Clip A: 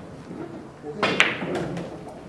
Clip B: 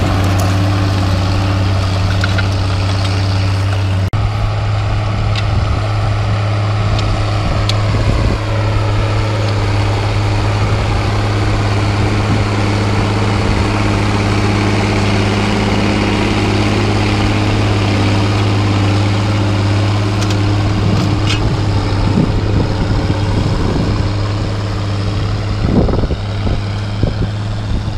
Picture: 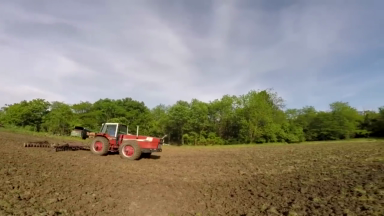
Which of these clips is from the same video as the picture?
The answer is B